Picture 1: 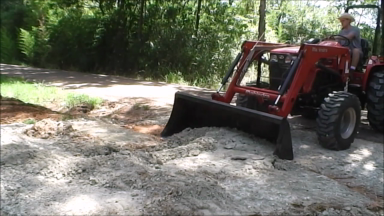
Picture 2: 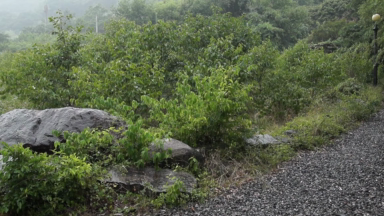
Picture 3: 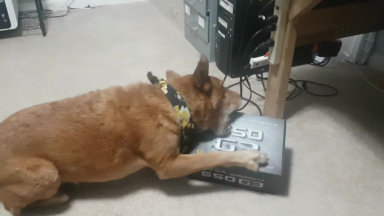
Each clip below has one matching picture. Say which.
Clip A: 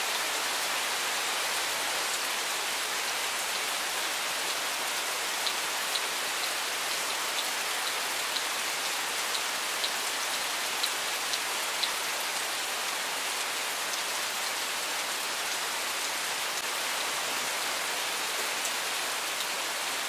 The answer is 2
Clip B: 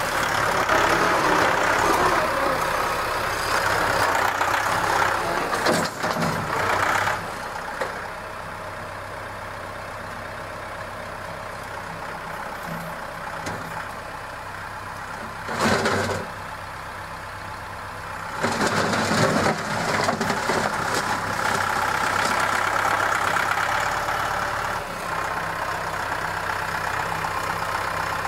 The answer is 1